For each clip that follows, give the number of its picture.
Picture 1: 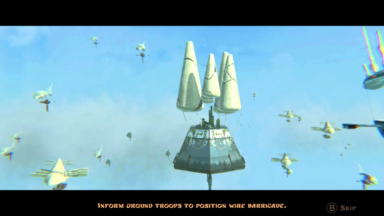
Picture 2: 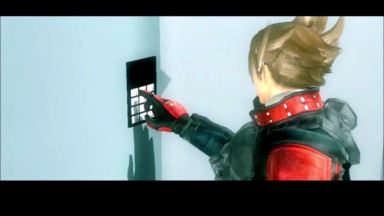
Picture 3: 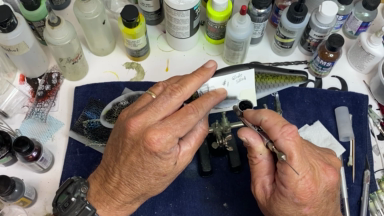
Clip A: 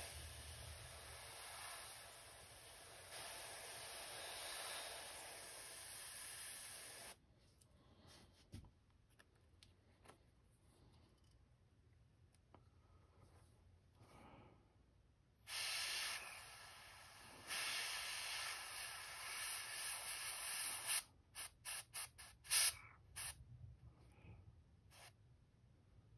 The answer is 3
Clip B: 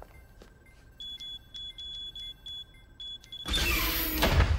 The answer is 2